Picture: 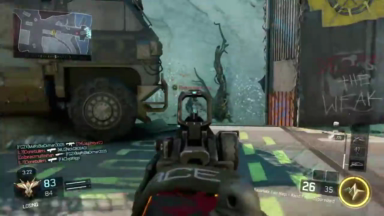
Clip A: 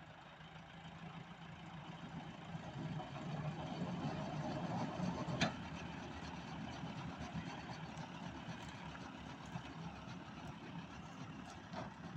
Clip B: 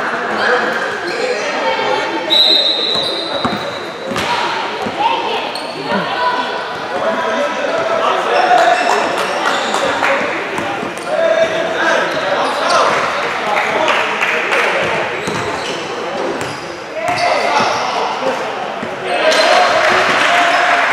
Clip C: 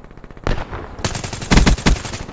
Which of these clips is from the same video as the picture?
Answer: C